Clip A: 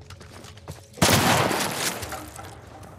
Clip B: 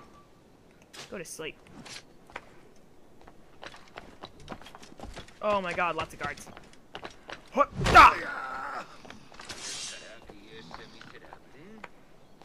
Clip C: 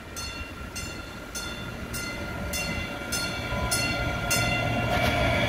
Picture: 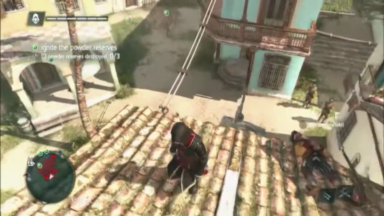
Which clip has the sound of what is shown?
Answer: B